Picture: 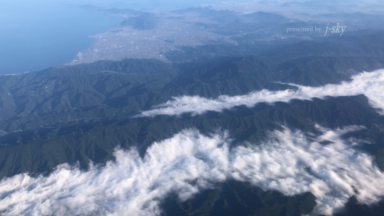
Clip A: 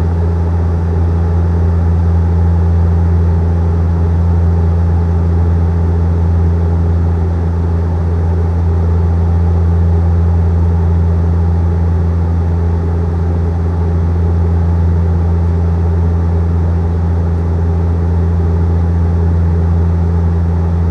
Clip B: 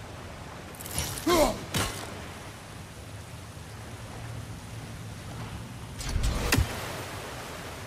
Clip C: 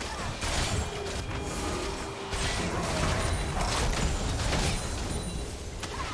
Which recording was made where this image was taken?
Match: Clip A